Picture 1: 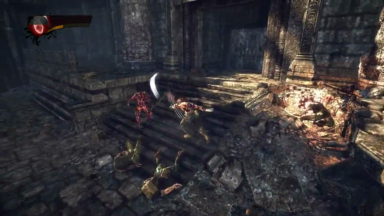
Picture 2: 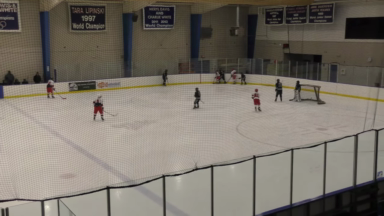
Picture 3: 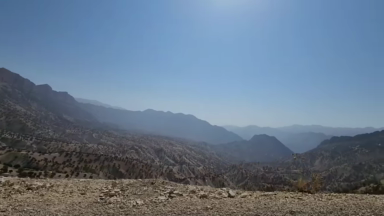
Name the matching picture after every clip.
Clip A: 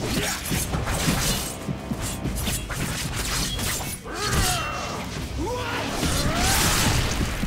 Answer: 1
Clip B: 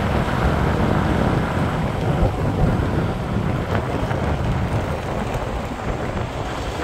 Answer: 3